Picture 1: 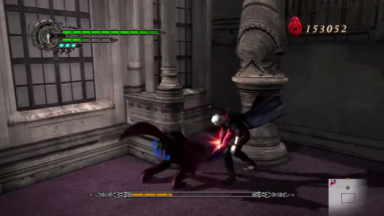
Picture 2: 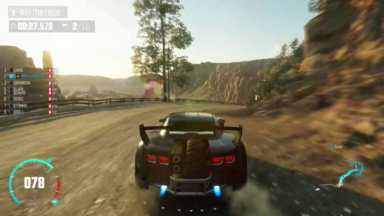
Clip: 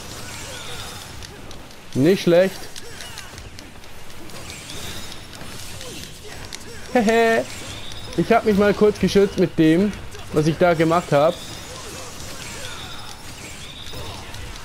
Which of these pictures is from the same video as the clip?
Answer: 1